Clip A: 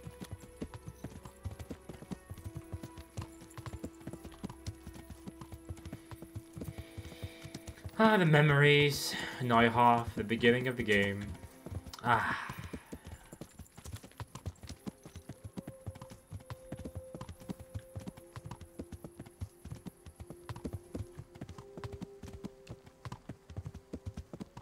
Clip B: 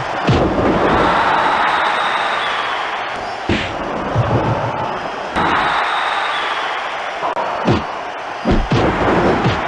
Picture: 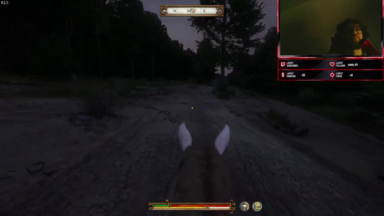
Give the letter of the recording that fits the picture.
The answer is A